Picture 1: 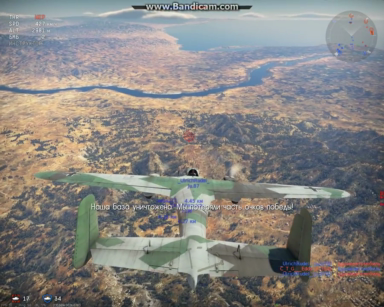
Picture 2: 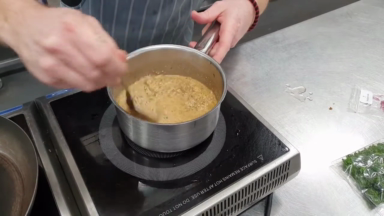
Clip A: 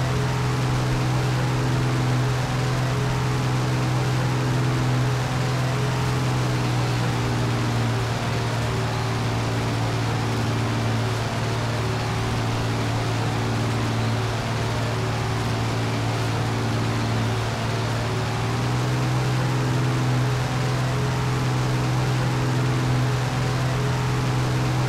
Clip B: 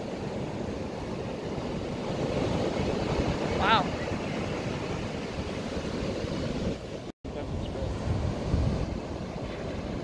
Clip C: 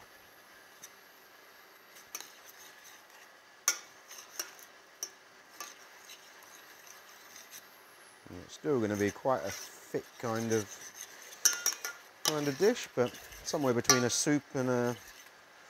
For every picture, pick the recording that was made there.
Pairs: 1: A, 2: C